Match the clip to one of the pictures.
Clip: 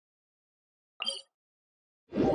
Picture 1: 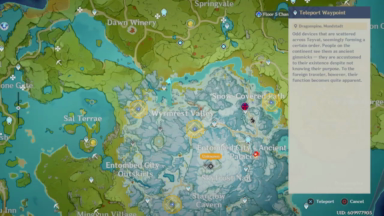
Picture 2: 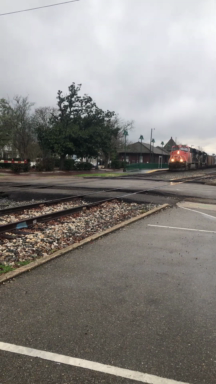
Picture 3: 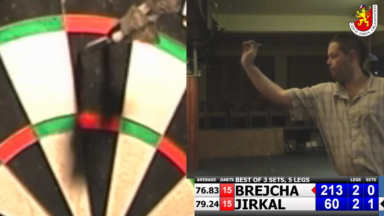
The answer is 1